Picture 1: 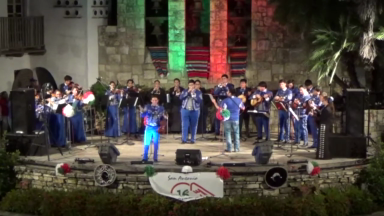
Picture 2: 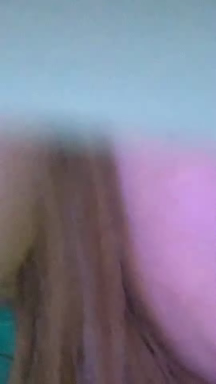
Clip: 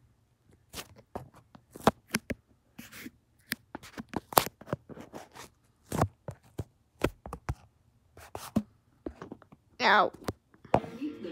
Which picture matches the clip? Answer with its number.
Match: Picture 2